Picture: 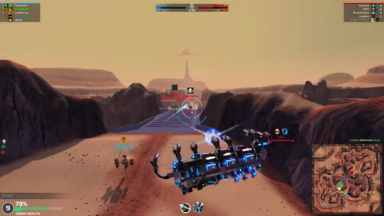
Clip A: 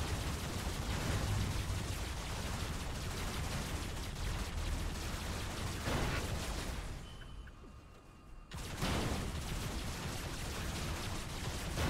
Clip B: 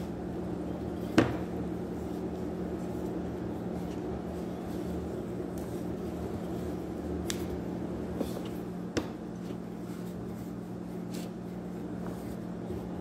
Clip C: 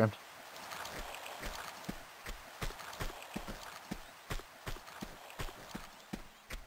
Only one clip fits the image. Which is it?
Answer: A